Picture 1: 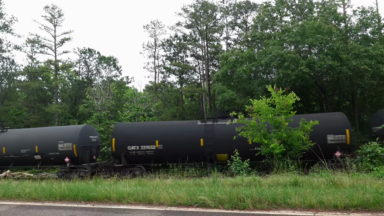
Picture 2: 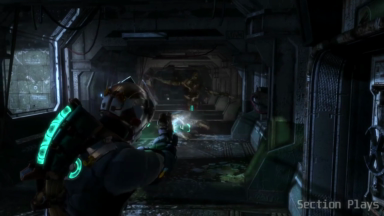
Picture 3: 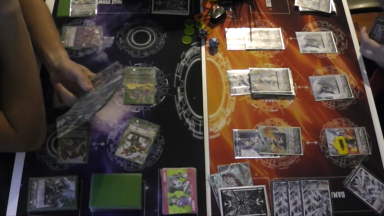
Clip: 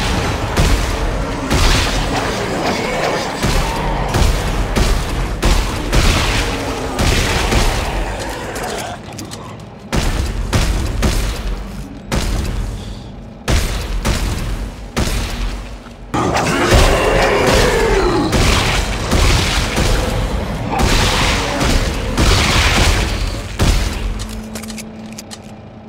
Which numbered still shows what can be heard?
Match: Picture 2